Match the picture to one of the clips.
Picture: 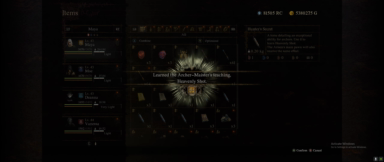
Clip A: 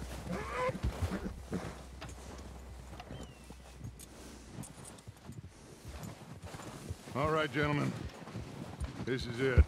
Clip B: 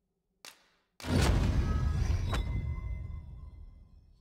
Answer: B